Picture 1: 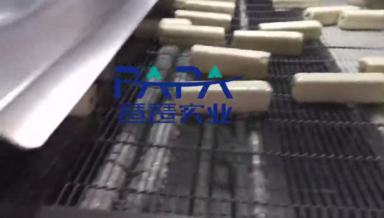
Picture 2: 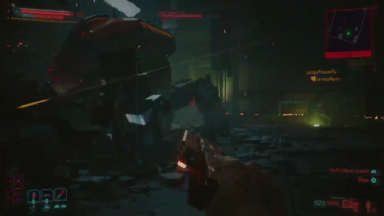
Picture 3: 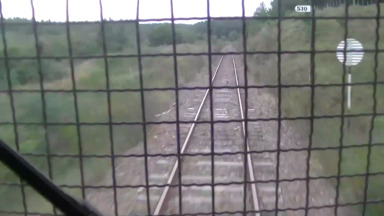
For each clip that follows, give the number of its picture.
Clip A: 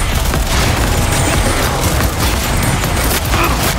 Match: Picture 2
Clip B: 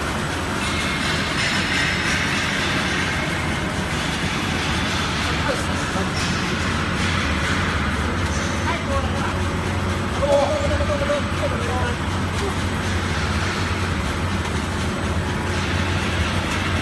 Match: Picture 1